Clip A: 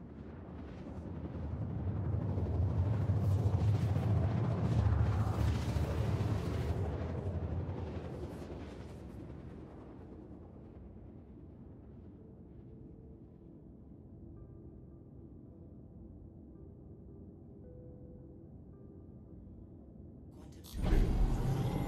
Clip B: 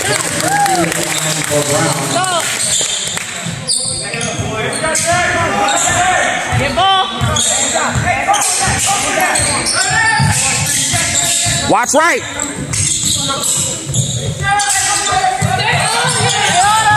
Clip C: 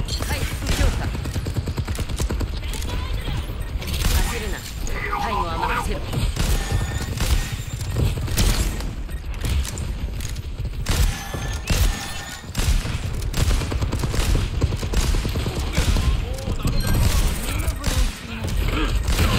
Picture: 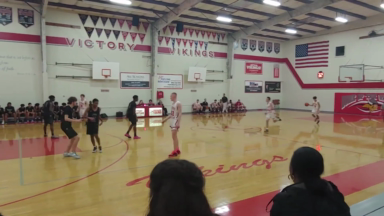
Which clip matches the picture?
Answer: B